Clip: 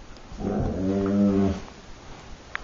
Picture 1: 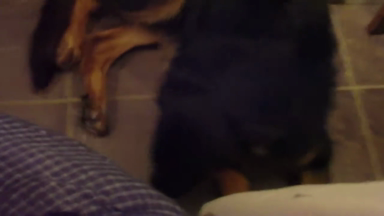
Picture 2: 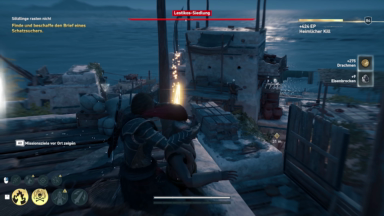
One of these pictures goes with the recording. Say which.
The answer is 1